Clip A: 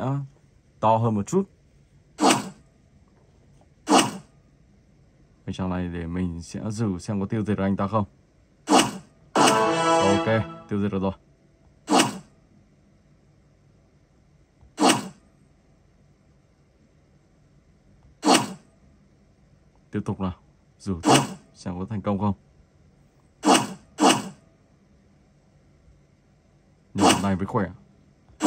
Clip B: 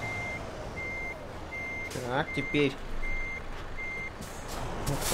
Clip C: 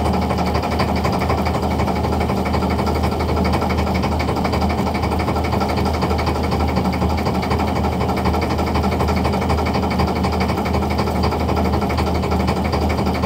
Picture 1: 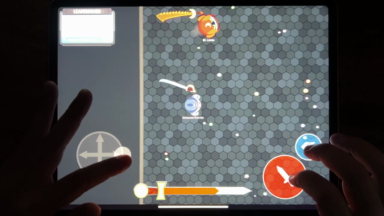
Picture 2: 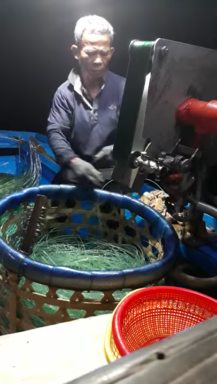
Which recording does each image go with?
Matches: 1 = A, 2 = C